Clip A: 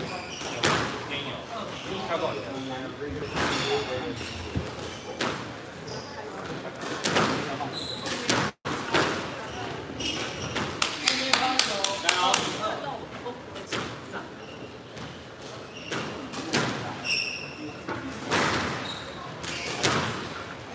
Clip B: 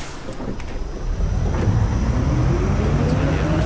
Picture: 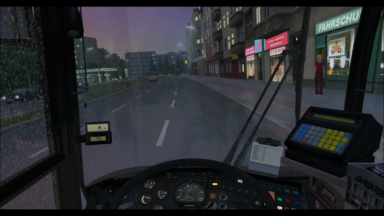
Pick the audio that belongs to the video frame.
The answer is B